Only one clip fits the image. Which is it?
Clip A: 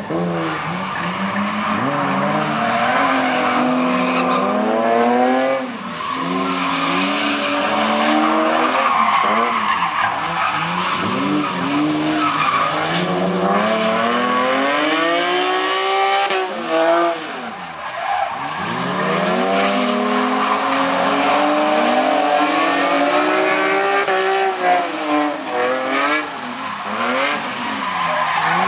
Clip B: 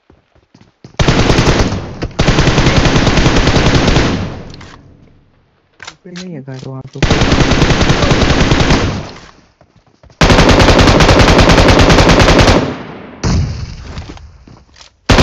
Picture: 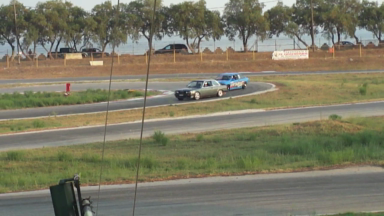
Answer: A